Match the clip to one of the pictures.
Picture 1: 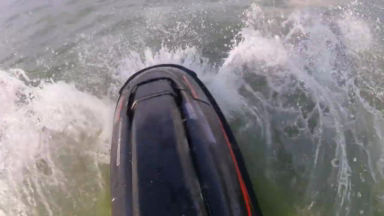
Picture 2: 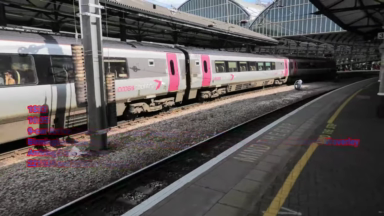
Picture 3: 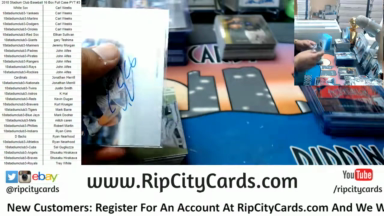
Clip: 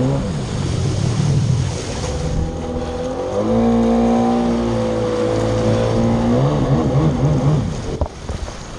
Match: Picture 1